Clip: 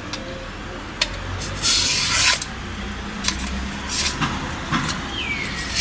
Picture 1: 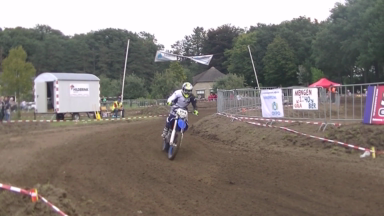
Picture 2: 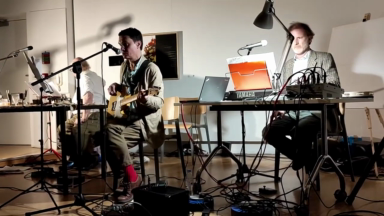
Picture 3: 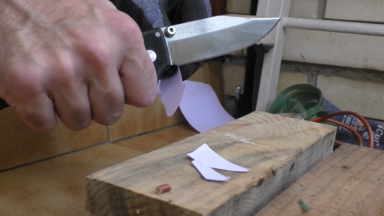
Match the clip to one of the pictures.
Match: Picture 3